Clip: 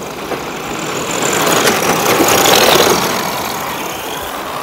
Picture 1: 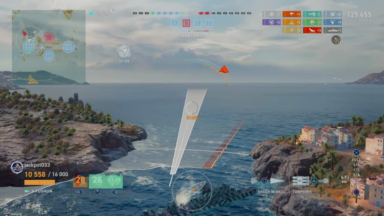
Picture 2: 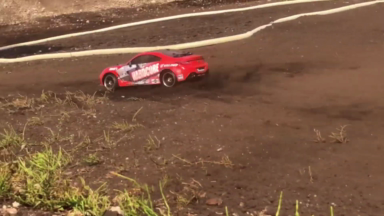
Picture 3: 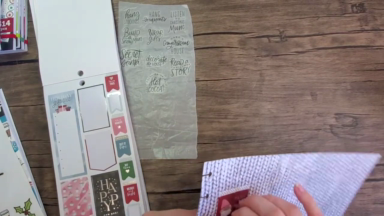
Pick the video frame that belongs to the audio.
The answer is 2